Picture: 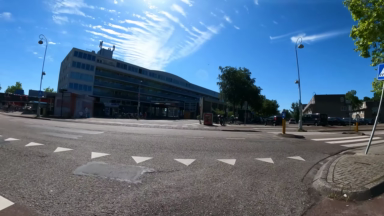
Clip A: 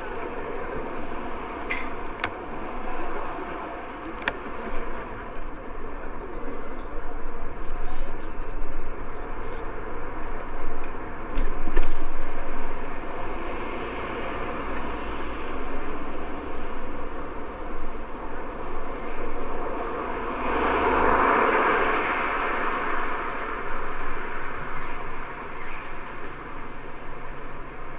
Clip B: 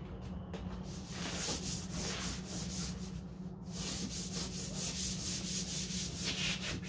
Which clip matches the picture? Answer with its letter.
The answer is A